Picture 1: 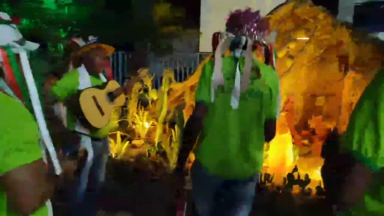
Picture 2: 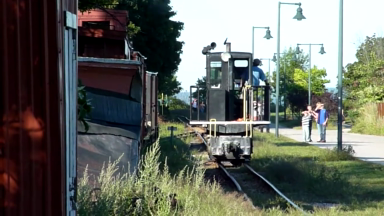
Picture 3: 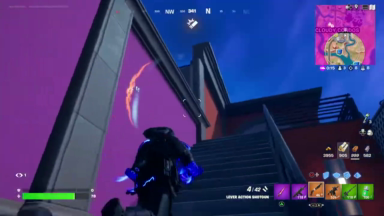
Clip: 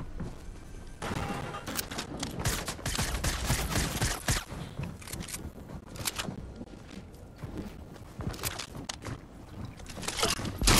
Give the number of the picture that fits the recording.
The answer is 3